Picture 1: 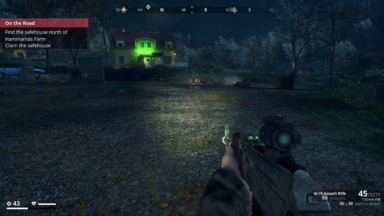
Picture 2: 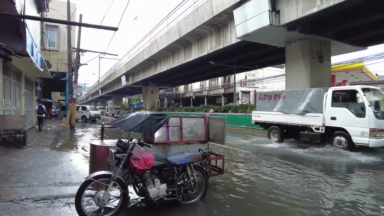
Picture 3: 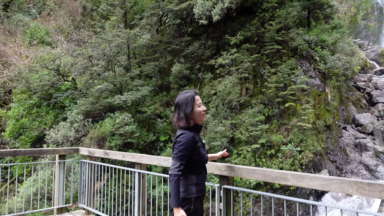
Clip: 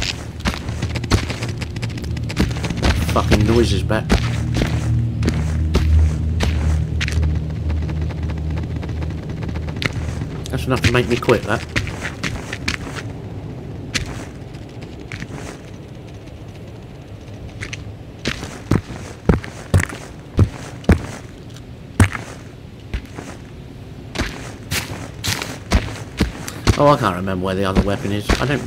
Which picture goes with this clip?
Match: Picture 1